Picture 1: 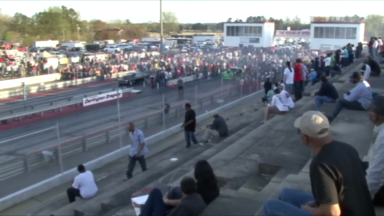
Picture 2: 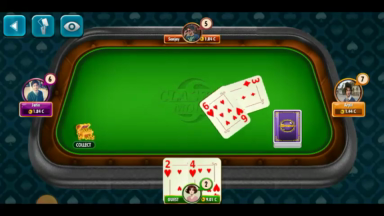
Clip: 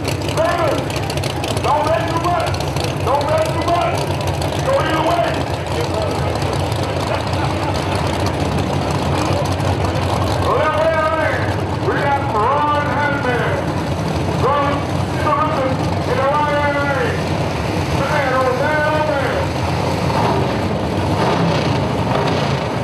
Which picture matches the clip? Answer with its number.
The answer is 1